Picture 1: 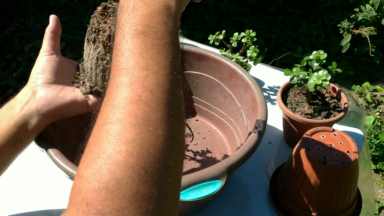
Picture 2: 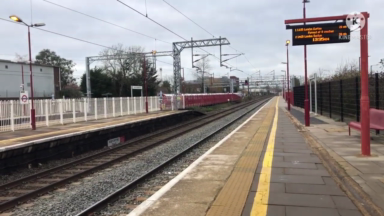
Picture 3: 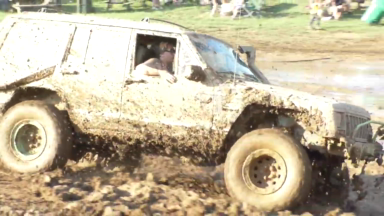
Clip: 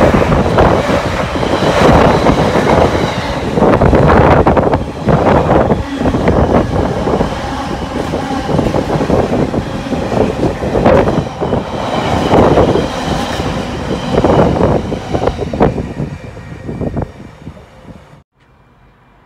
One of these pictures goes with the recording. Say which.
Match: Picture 2